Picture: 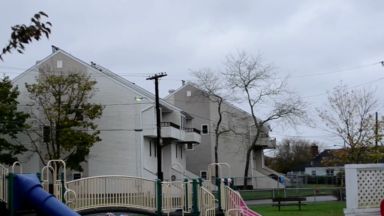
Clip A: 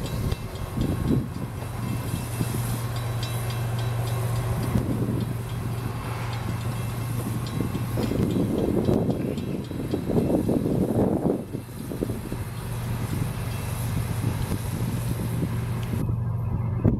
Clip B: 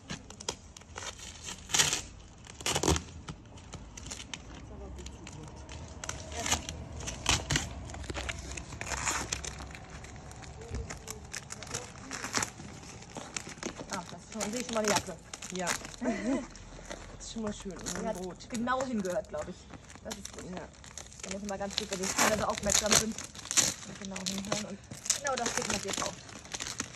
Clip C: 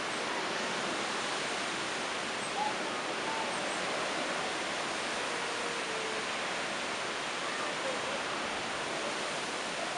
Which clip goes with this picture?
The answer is C